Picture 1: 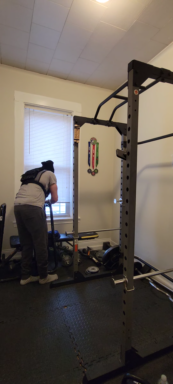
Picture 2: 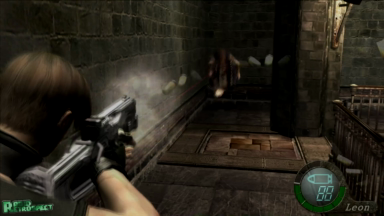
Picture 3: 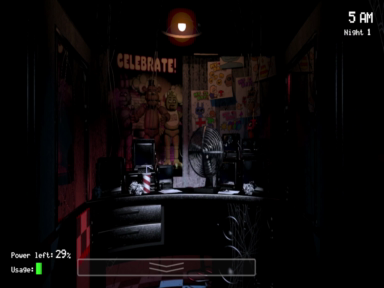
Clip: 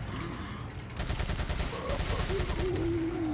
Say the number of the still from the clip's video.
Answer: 2